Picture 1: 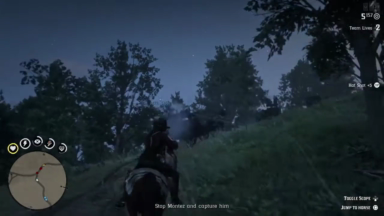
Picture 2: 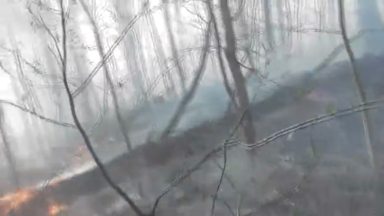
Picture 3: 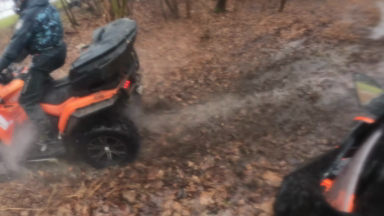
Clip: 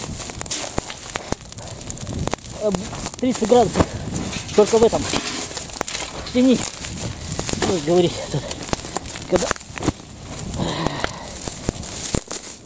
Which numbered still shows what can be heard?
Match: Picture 2